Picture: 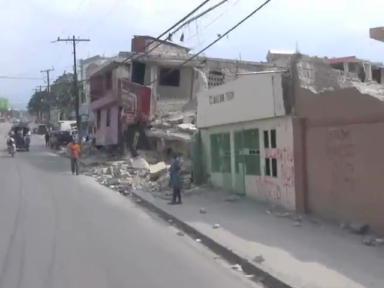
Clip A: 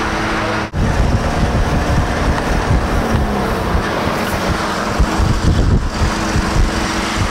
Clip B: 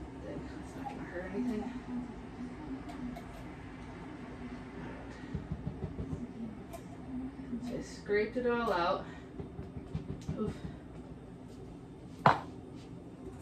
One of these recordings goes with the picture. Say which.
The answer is A